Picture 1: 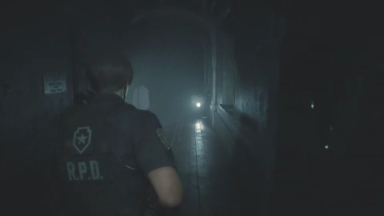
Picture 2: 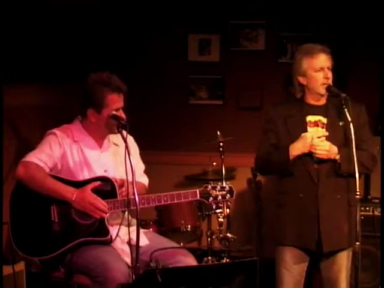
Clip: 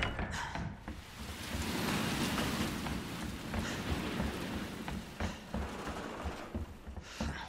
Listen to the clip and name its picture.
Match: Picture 1